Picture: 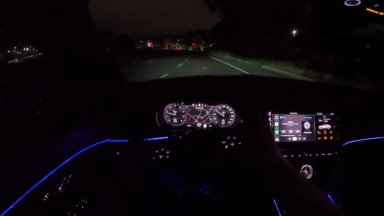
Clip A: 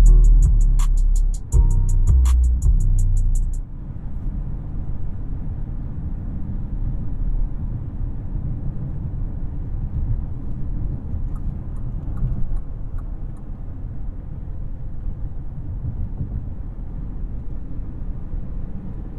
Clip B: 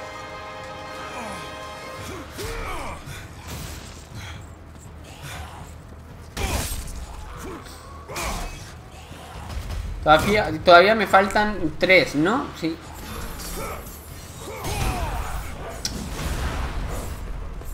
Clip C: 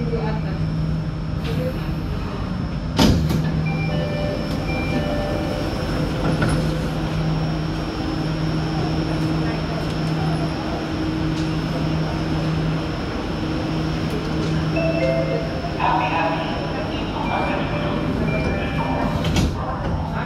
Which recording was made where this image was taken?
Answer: A